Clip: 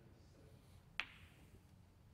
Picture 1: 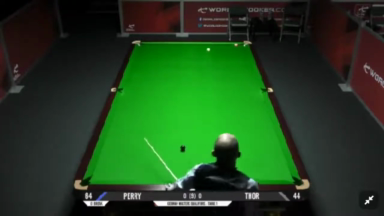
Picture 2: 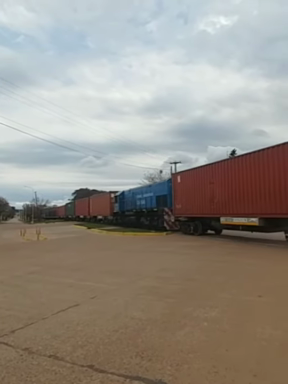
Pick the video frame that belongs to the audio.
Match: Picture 1